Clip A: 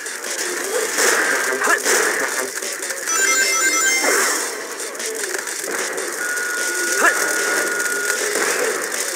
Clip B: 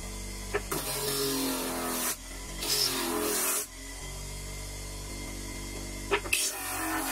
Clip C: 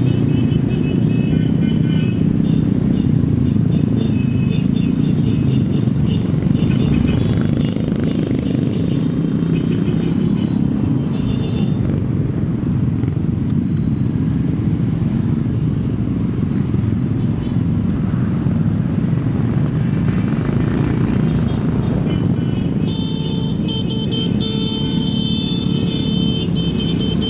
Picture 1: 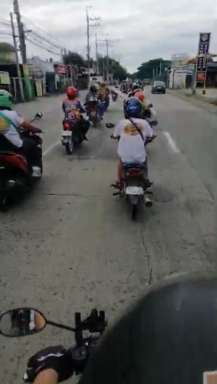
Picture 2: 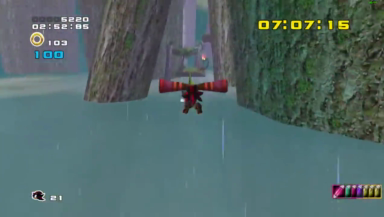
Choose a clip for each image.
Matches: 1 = C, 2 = A